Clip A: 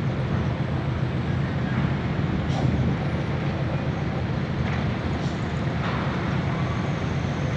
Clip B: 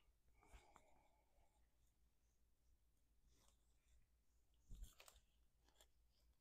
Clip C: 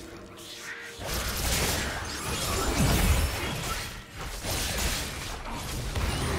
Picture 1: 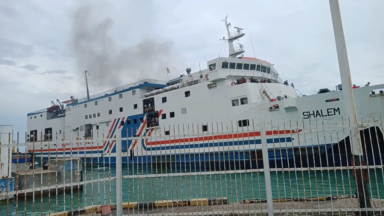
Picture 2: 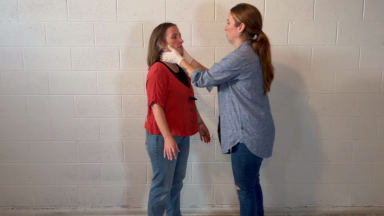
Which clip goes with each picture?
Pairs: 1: A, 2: B